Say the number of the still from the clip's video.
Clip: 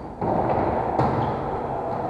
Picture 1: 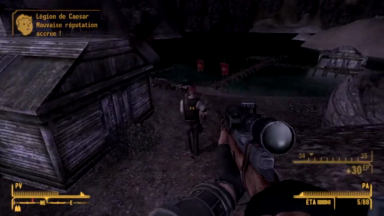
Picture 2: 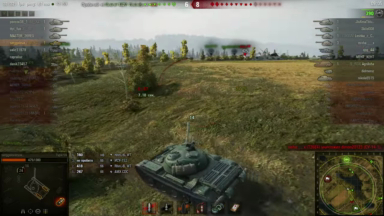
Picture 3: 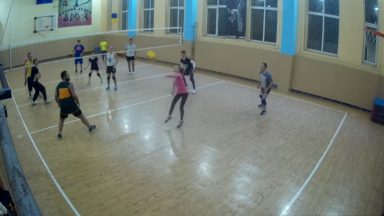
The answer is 3